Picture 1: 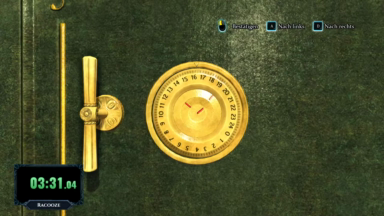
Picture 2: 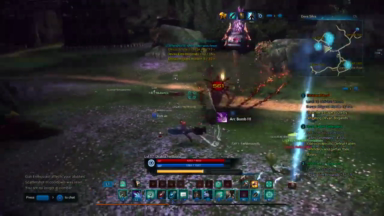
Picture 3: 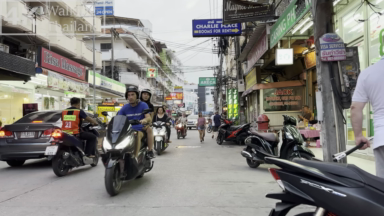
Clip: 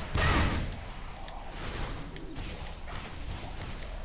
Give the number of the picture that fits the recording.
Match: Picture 2